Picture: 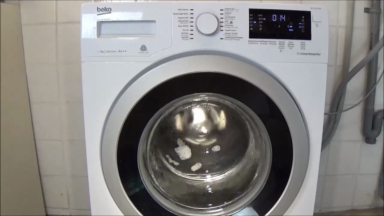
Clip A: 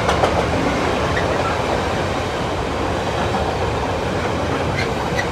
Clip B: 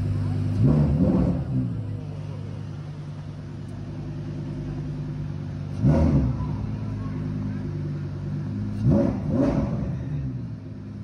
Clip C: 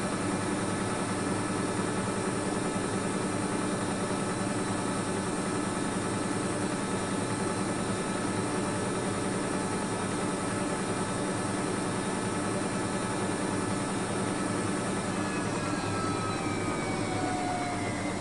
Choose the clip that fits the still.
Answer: C